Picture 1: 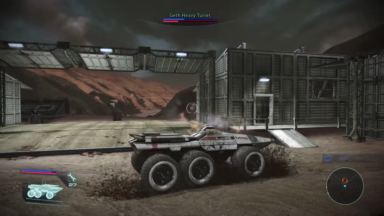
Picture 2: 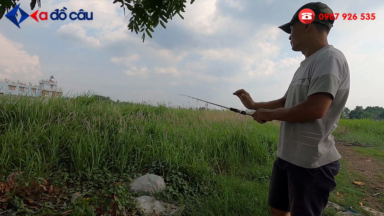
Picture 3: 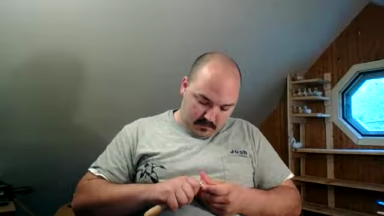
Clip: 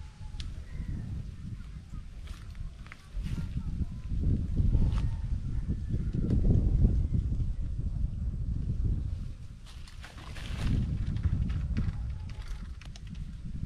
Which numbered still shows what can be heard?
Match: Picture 2